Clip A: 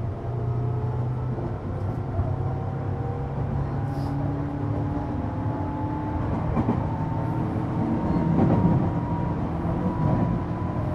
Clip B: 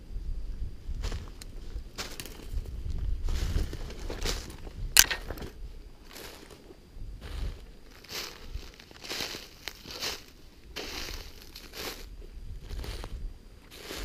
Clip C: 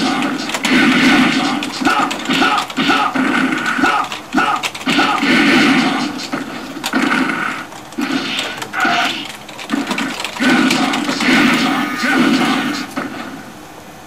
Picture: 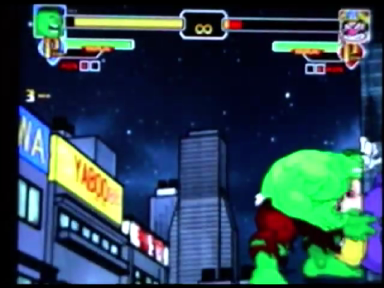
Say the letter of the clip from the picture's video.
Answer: C